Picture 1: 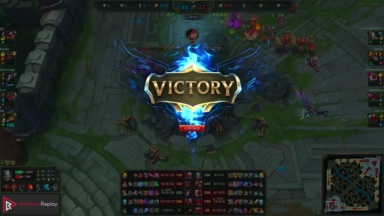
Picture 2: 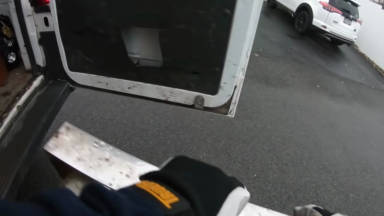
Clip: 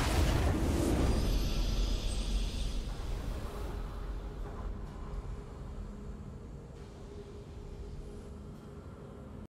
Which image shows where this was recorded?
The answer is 1